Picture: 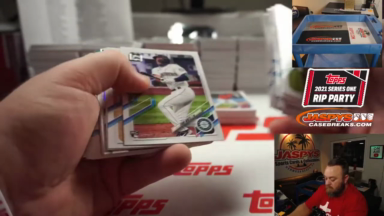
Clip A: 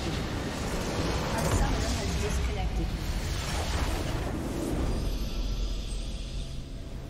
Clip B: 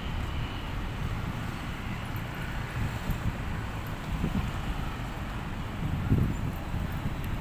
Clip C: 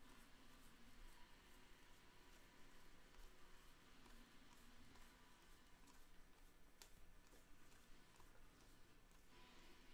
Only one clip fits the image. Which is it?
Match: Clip C